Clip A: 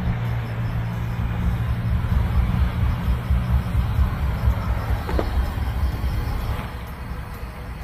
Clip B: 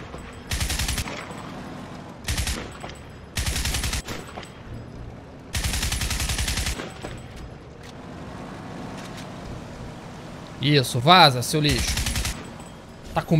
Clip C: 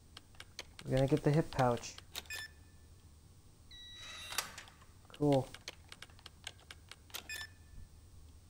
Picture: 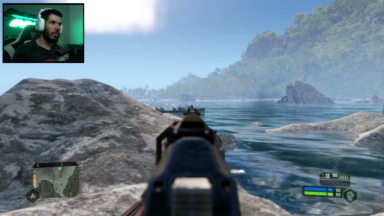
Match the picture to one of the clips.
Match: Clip B